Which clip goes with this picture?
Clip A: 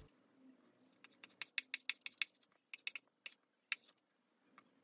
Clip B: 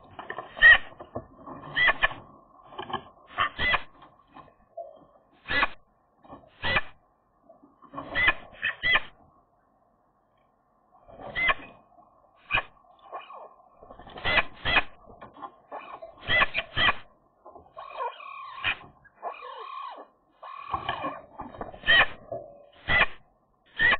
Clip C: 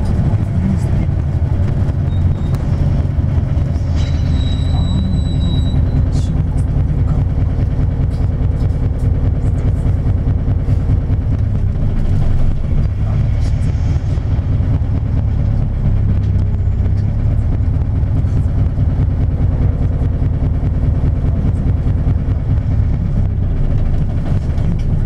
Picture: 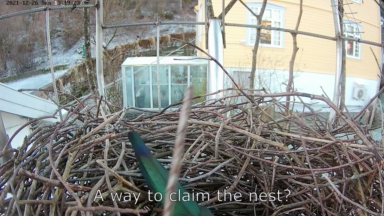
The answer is B